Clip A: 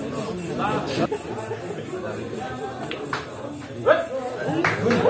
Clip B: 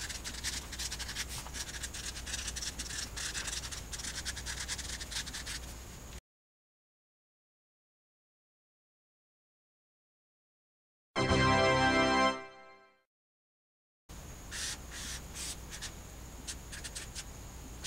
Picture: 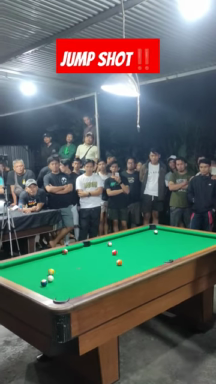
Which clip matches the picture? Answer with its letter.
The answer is A